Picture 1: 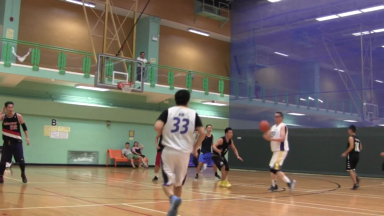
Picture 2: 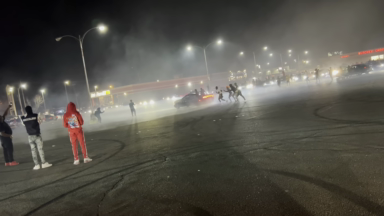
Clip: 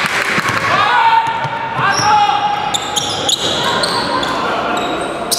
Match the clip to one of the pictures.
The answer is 1